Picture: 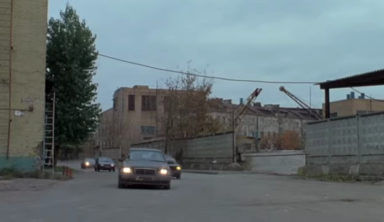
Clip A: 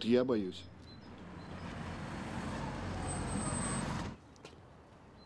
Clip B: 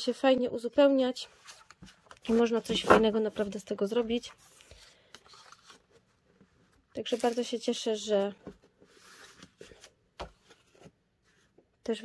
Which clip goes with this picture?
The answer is A